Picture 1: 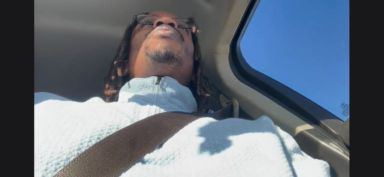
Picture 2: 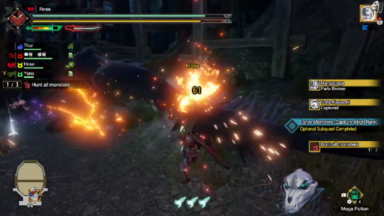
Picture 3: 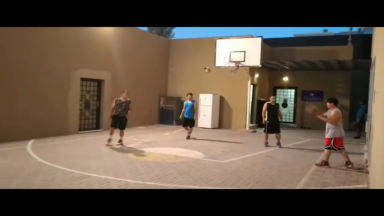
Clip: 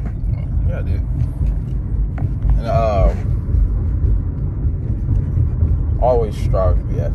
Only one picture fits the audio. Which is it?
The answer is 1